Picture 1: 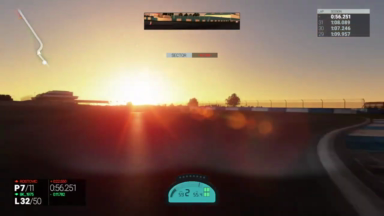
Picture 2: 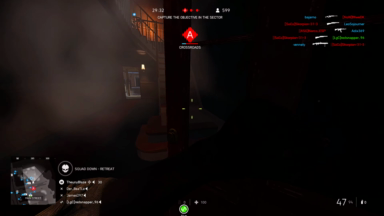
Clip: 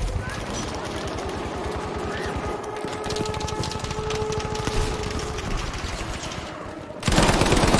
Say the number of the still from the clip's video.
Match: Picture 2